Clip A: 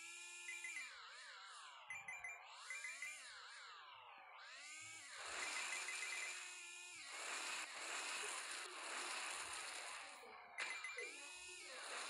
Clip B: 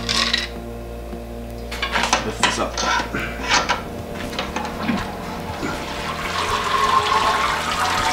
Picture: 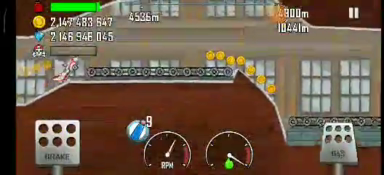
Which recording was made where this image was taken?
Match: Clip A